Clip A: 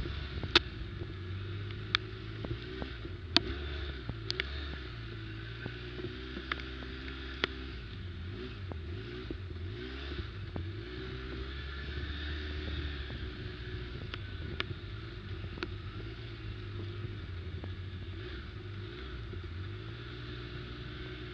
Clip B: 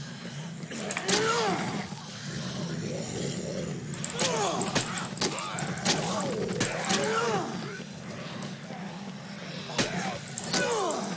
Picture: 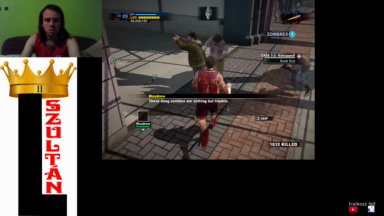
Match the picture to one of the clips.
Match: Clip B